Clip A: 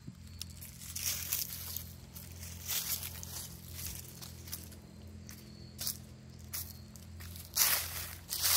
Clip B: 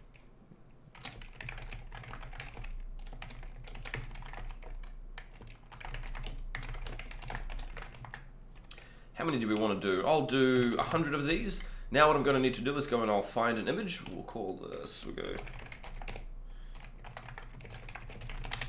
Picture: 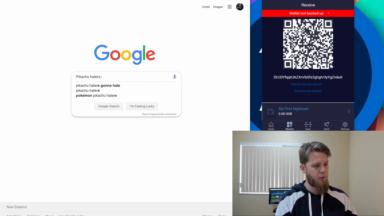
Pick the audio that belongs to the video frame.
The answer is B